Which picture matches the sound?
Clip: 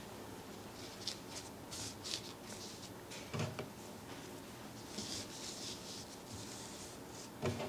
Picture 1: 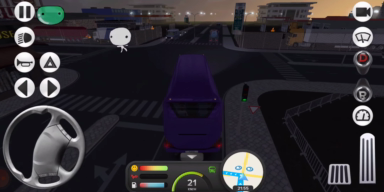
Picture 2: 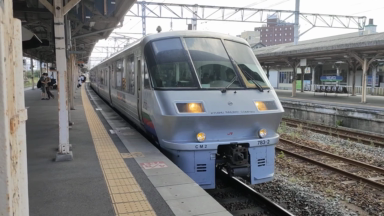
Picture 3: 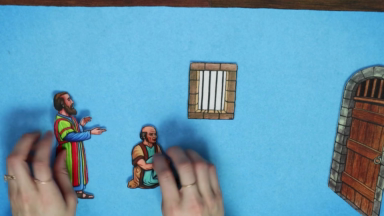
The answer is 3